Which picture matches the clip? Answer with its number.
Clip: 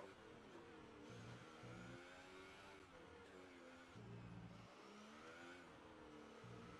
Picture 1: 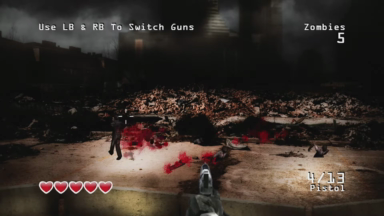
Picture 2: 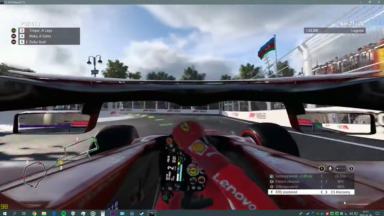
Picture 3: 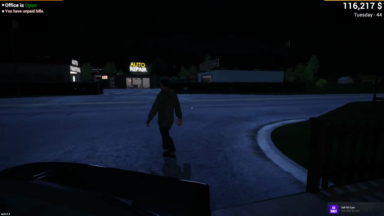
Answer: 2